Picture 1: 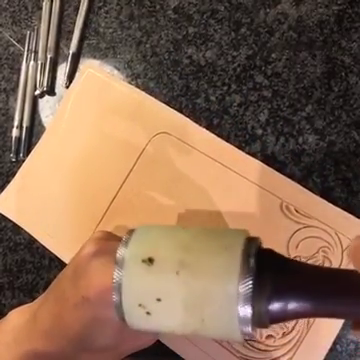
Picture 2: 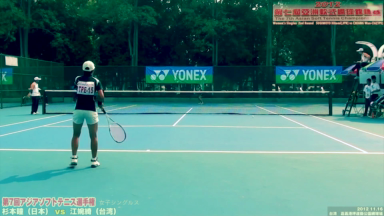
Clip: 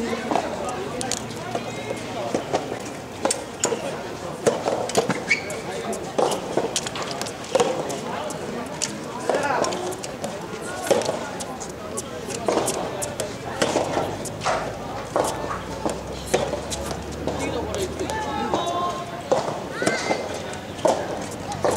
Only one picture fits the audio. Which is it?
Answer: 2